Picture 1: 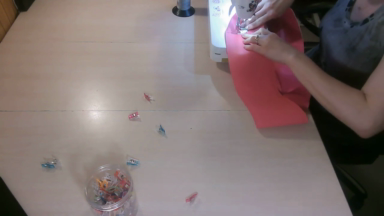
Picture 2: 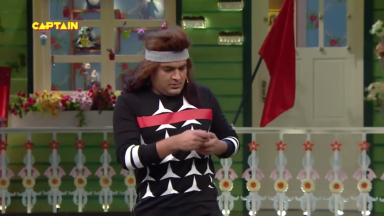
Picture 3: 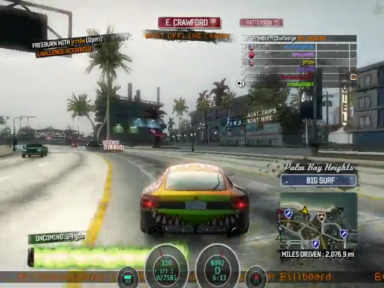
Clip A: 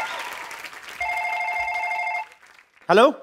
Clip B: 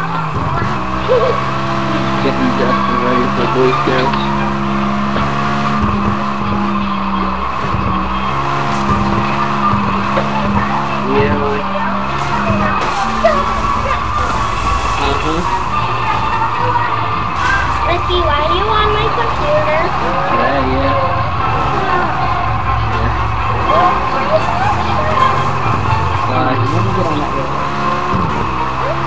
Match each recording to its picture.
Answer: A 2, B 3